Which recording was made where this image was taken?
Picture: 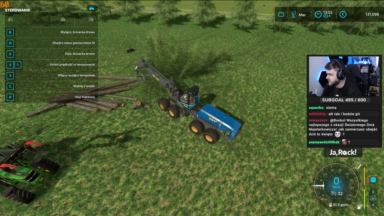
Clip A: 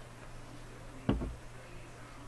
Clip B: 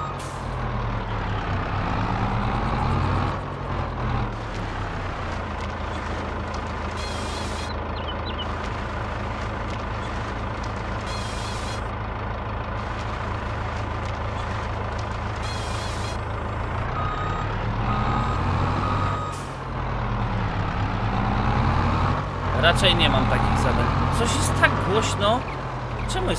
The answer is B